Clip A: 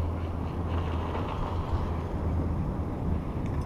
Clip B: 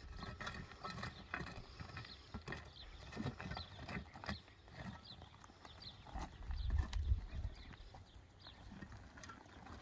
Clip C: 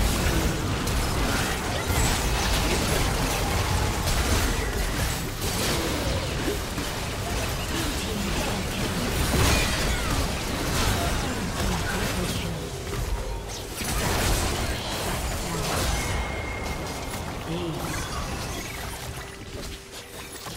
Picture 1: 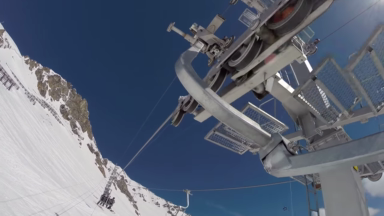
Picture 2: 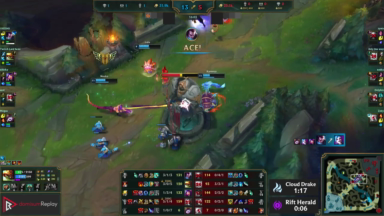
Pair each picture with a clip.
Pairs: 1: A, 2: C